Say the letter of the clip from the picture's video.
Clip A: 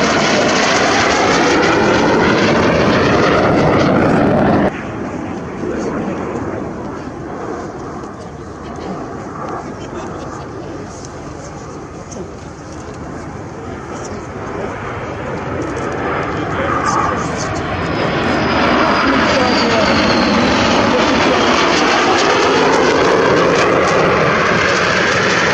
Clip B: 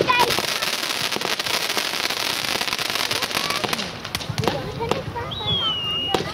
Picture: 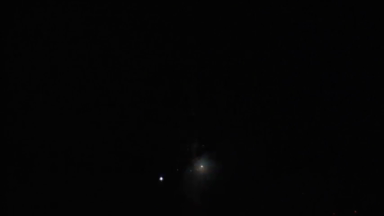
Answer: B